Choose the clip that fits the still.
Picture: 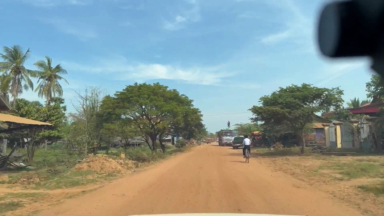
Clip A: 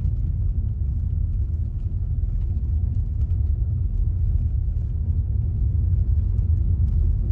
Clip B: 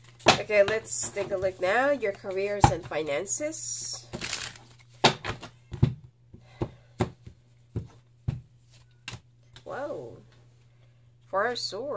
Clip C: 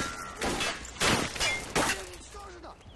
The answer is A